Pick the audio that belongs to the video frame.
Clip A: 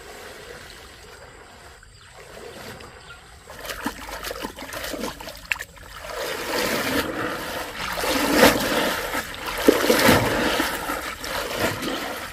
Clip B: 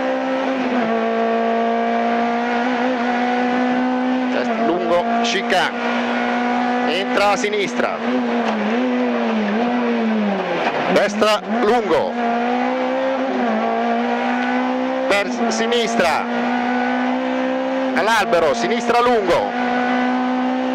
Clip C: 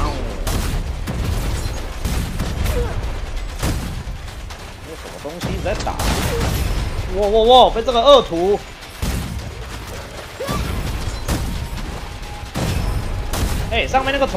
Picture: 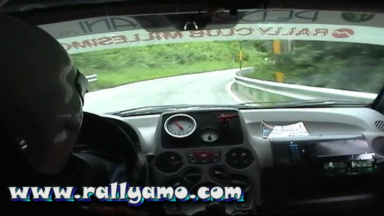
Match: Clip B